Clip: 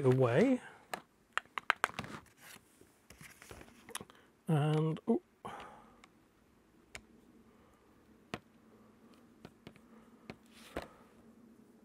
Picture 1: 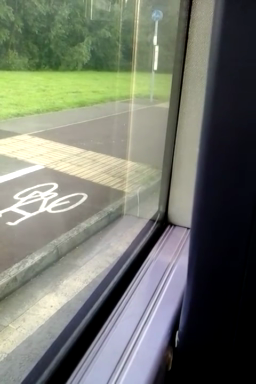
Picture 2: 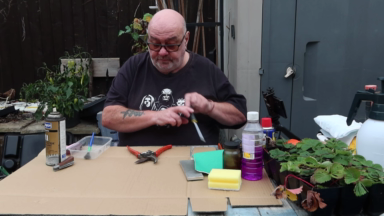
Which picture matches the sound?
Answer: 2